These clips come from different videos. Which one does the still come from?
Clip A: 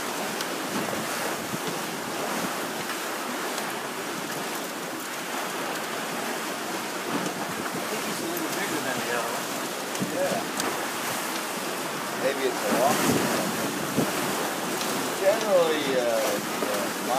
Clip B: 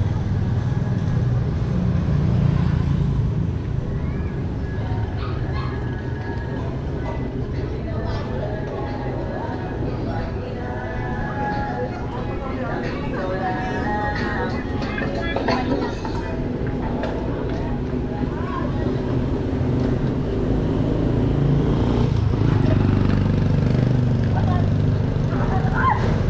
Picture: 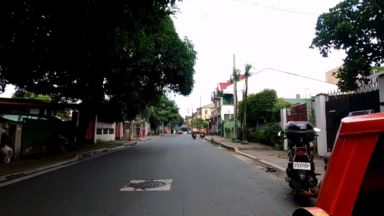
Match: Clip B